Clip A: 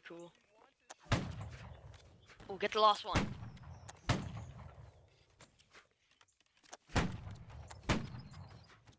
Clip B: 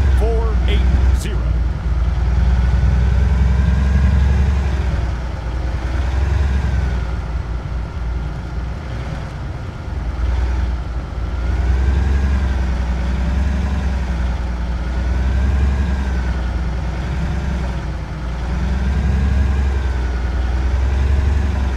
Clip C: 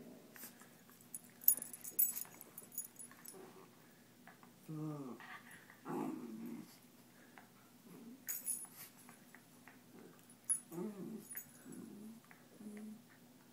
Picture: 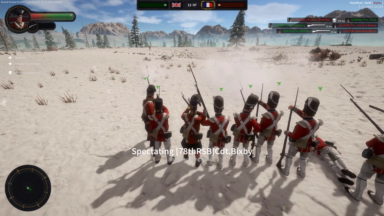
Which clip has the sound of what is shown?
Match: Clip A